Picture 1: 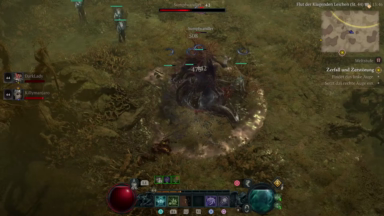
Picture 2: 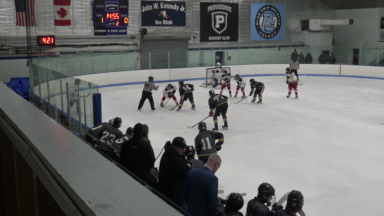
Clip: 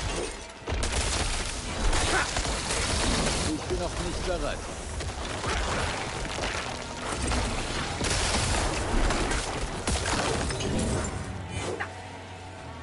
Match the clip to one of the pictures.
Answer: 1